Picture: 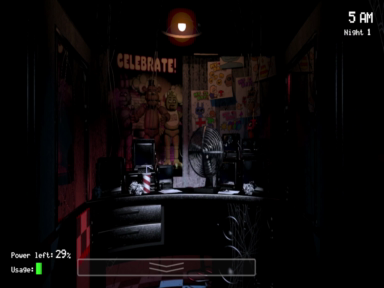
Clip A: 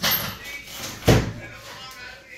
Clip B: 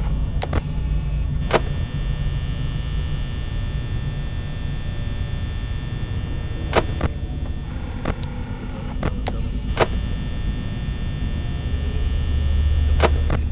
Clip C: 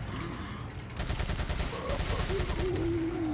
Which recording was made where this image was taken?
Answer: B